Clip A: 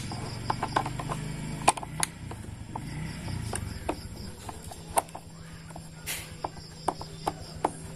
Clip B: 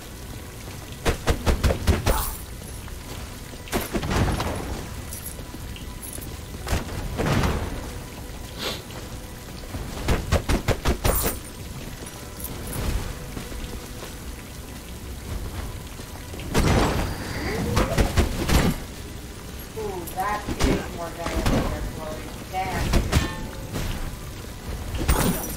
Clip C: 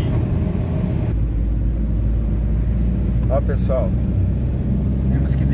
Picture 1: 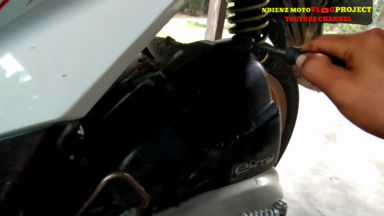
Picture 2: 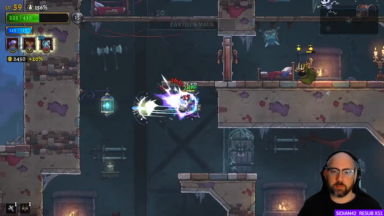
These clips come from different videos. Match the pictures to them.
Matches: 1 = A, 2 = B